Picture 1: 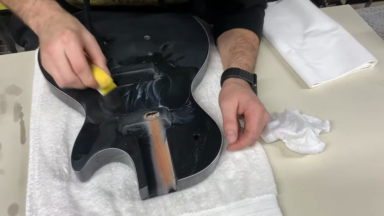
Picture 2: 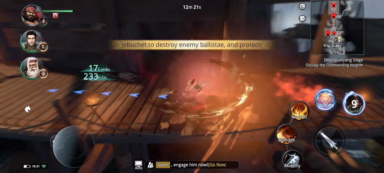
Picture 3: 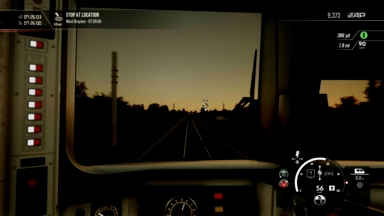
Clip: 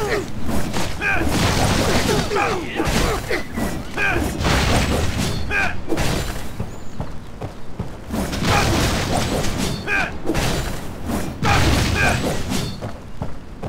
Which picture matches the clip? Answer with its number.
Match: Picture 2